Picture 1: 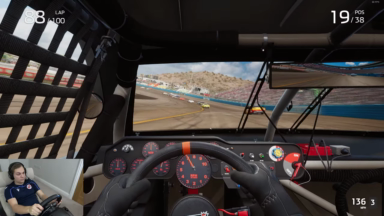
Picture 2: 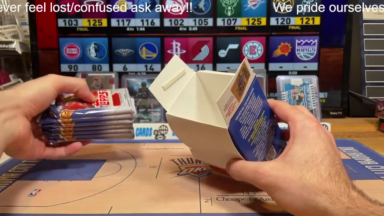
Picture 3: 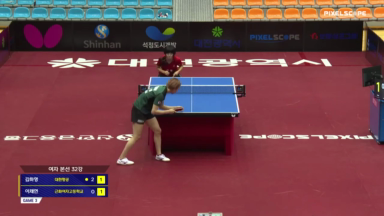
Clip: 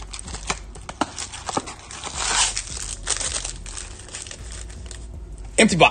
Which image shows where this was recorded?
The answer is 2